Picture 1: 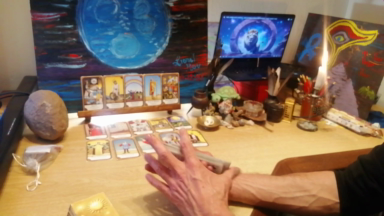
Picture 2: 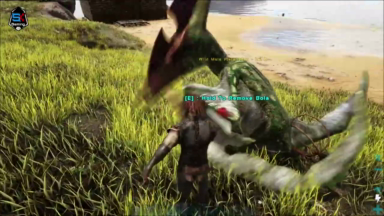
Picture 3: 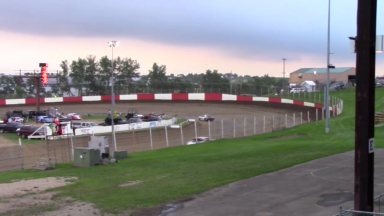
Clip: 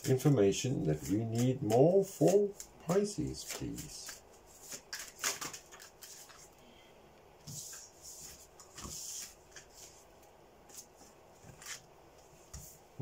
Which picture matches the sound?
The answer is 1